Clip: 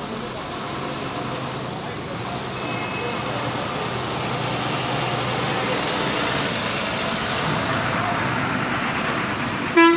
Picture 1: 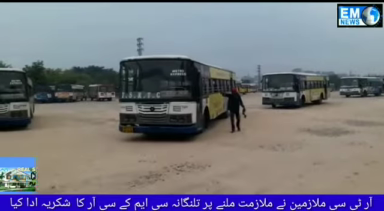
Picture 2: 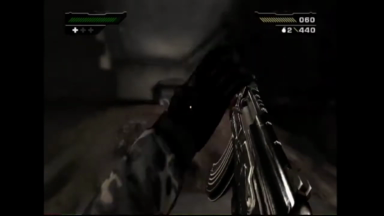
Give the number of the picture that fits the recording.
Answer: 1